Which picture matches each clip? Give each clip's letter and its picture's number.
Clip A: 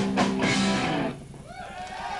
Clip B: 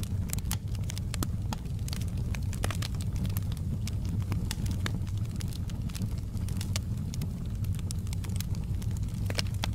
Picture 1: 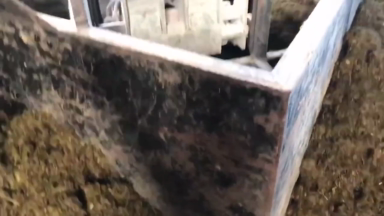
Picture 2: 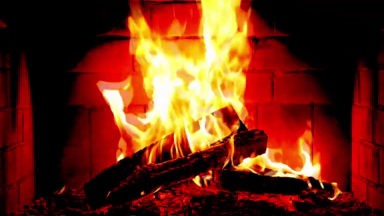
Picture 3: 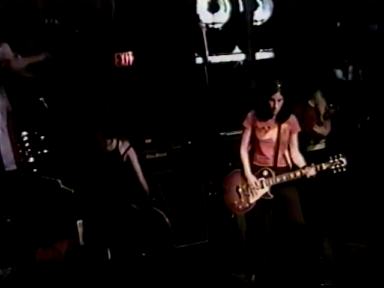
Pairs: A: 3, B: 2